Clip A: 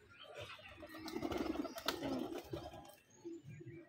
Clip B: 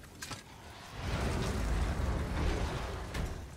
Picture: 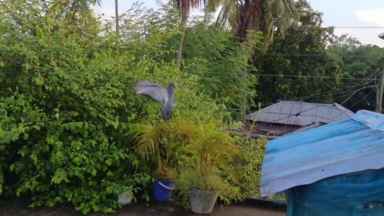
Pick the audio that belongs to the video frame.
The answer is A